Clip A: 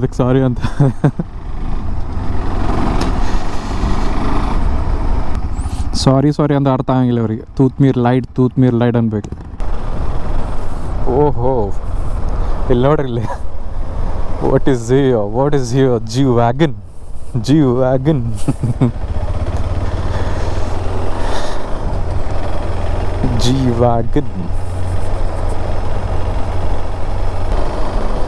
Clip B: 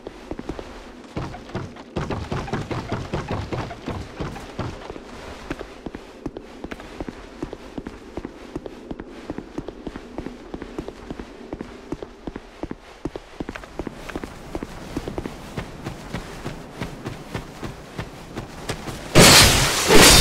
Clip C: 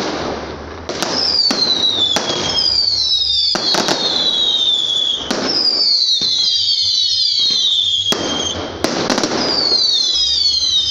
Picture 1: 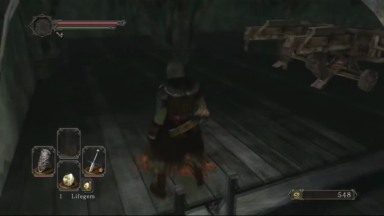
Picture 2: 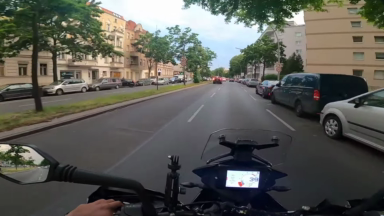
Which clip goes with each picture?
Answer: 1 B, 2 A